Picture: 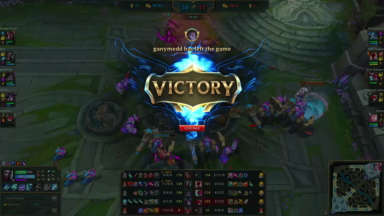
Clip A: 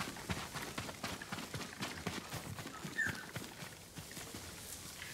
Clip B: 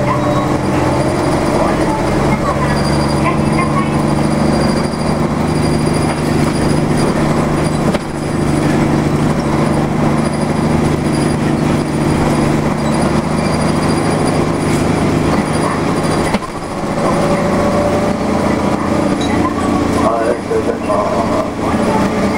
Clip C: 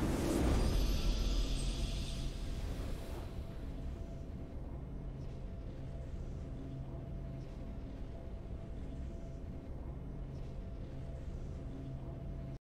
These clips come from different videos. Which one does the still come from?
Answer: C